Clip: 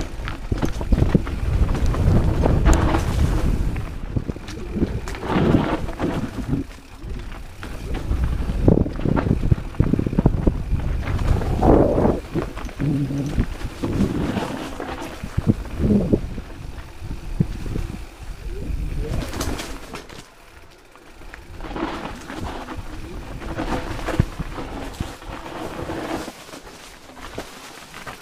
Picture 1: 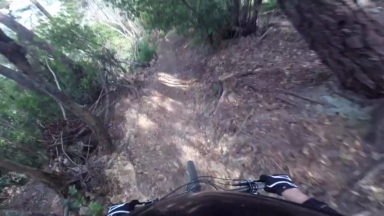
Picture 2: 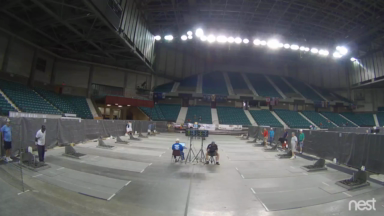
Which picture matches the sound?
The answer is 1